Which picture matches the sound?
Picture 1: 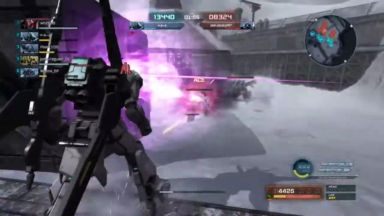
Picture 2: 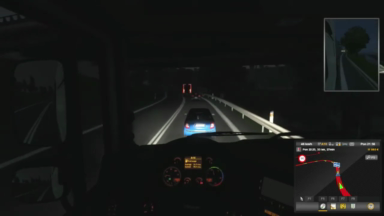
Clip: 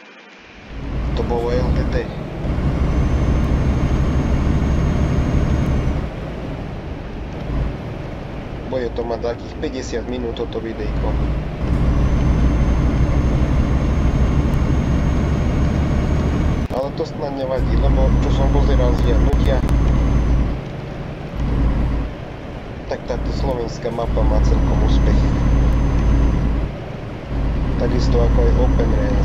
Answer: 2